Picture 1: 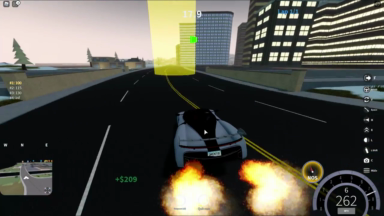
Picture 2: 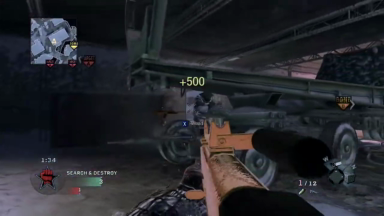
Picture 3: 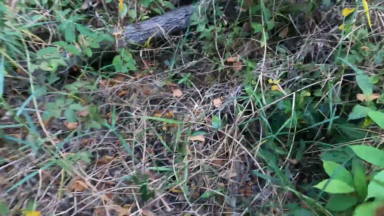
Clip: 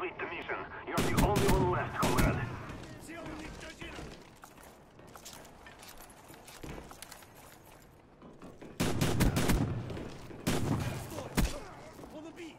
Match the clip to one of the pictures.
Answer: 2